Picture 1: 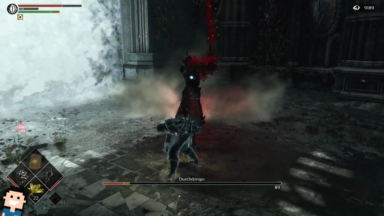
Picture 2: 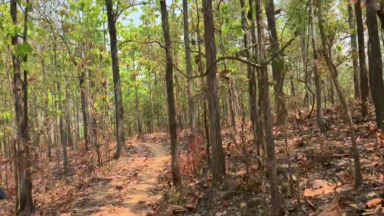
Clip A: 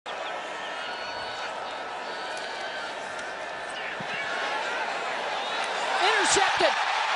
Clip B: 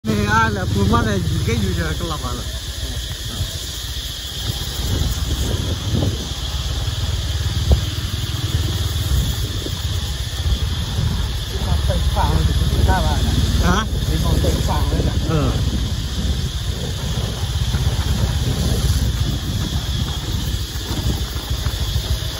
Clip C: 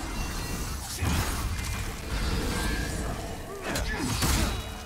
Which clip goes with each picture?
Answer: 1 C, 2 B